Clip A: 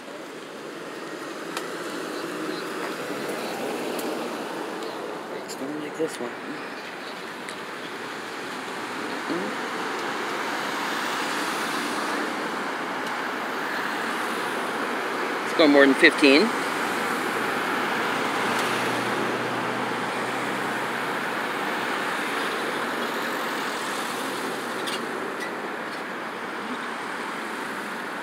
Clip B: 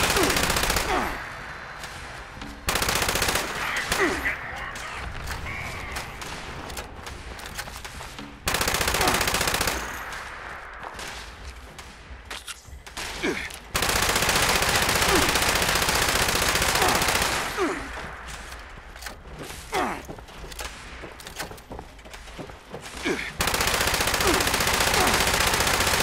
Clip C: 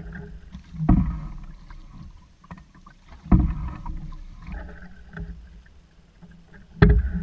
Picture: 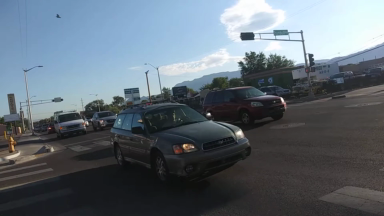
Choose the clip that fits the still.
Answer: A